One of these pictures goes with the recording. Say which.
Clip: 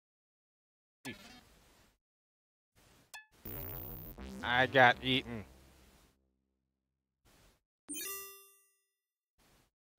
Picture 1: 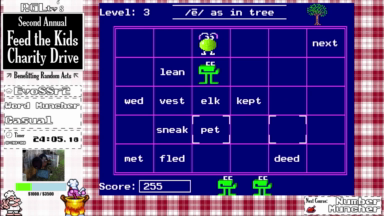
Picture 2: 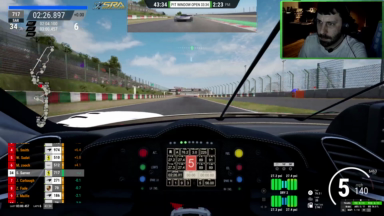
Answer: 1